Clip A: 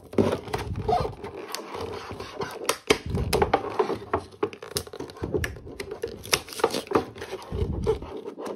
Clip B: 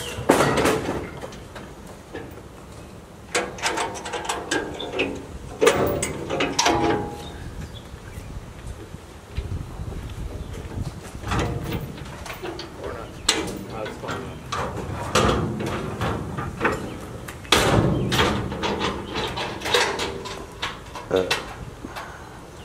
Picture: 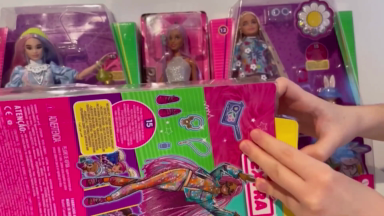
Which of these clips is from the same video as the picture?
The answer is A